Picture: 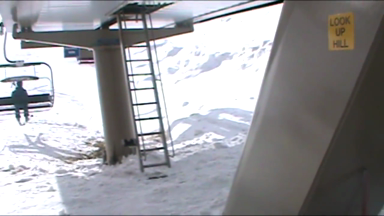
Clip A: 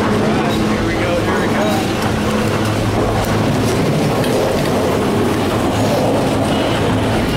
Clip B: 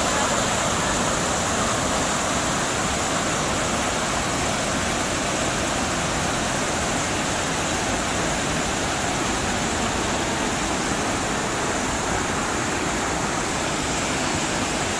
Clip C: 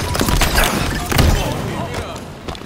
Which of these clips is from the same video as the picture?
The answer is A